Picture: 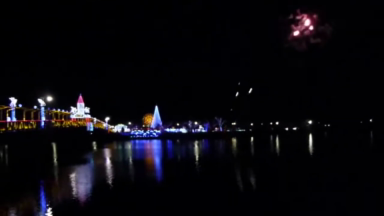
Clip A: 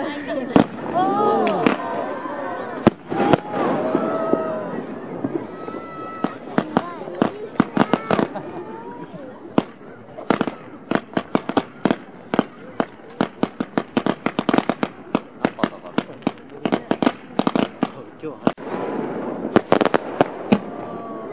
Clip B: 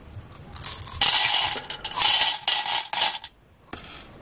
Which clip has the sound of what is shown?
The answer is A